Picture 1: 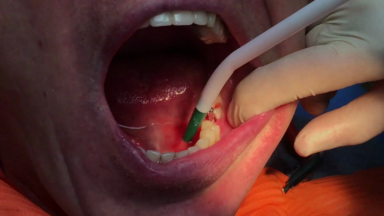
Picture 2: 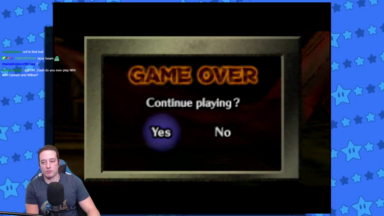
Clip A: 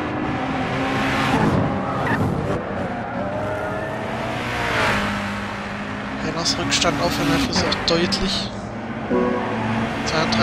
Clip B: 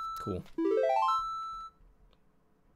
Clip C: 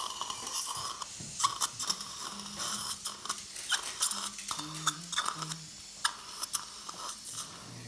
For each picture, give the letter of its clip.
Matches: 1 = C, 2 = B